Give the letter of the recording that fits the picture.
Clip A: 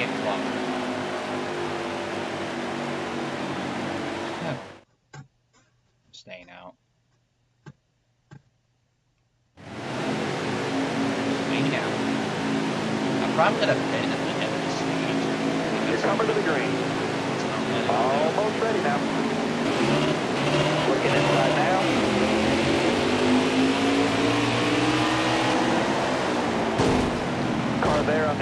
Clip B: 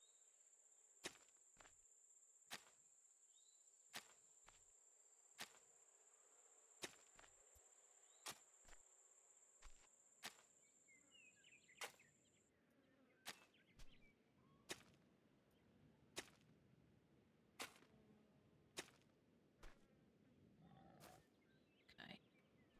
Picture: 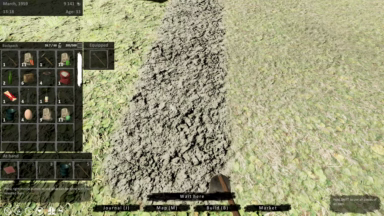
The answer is B